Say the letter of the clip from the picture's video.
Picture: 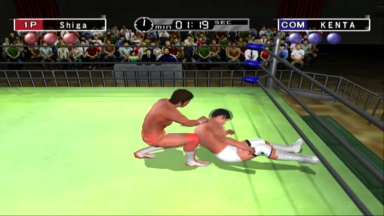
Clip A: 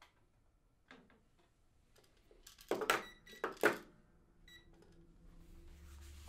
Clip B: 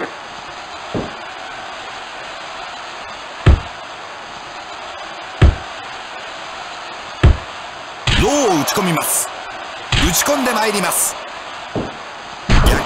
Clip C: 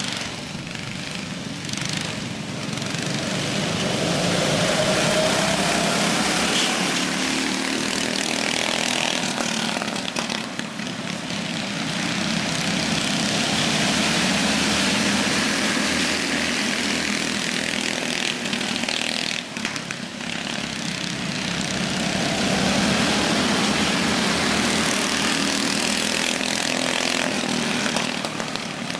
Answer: B